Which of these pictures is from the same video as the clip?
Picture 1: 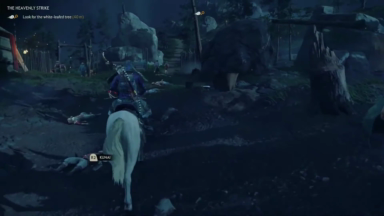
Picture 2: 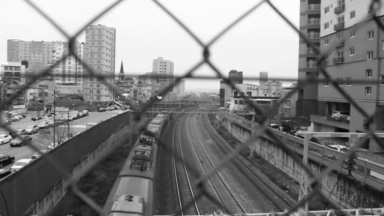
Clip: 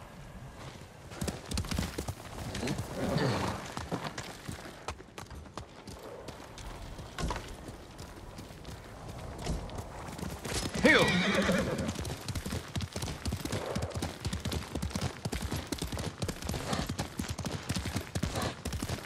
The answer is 1